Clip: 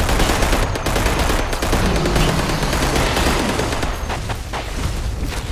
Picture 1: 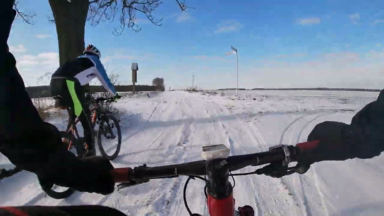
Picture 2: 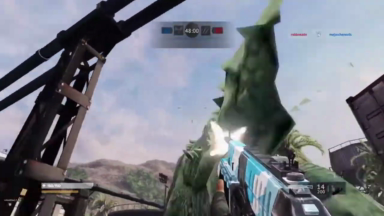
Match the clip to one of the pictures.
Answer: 2